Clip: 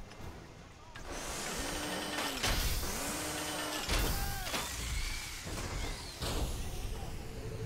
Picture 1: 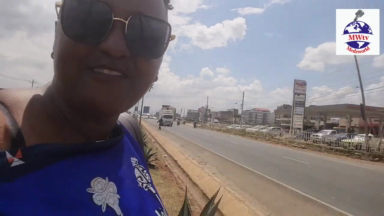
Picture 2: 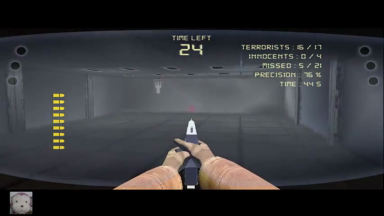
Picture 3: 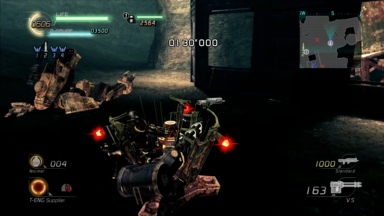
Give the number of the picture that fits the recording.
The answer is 3